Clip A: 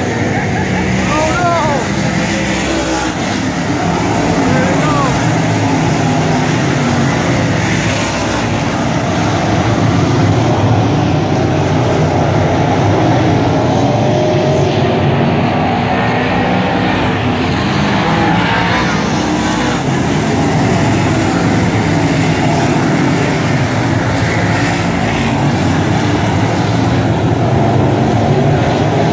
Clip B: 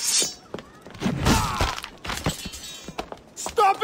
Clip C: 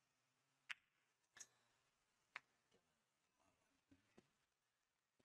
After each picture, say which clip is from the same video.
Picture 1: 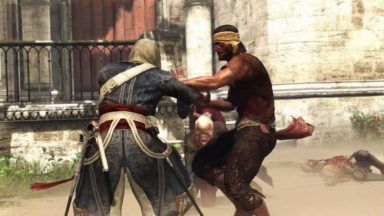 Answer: B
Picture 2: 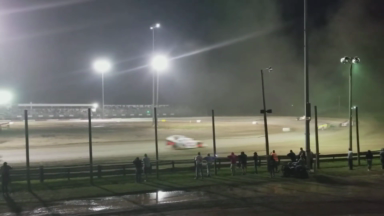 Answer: A